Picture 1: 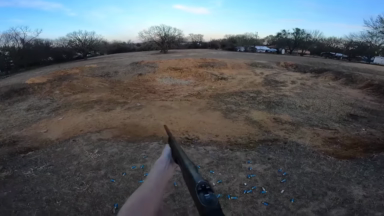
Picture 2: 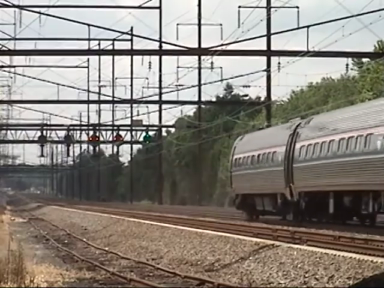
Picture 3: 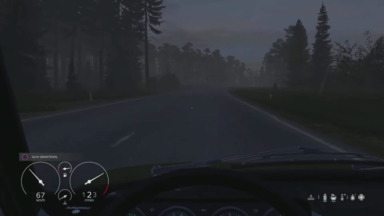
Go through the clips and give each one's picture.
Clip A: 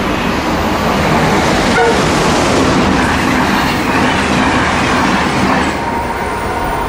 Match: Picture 2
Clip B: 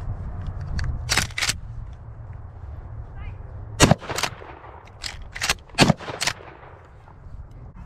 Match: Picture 1